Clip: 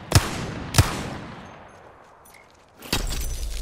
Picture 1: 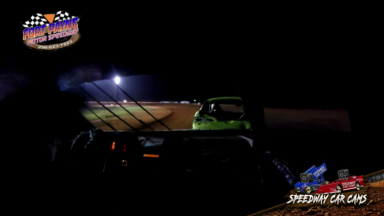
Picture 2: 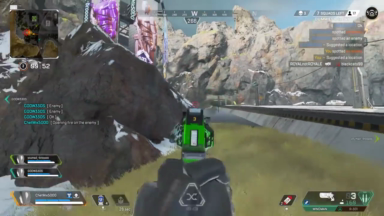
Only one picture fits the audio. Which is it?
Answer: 2